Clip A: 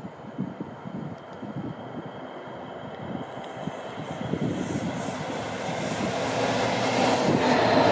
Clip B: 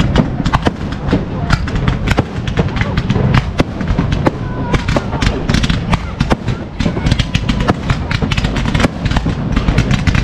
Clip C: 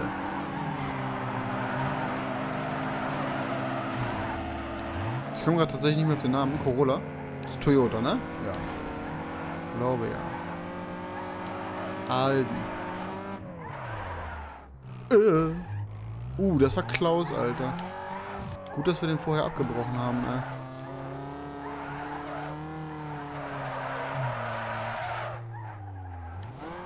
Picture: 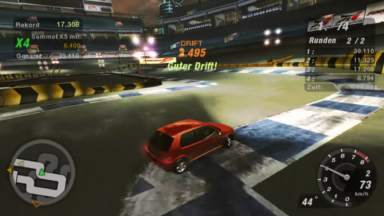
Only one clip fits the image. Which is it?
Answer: C